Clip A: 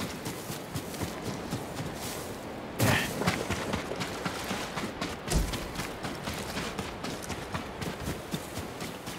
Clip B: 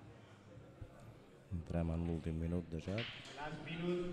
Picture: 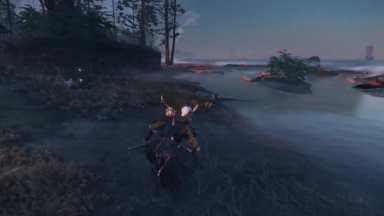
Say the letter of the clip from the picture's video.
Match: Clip A